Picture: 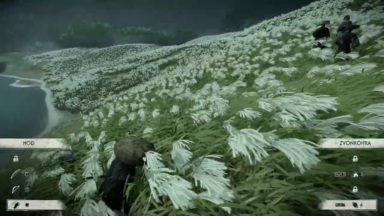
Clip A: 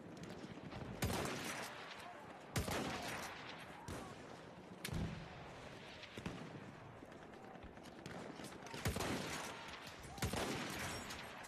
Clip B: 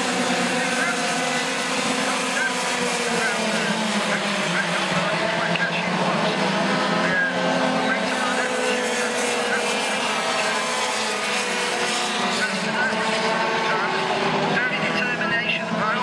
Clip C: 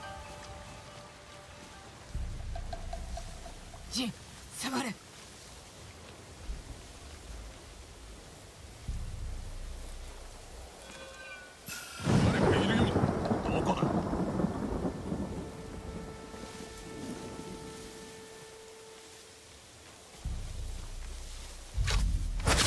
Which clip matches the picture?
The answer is C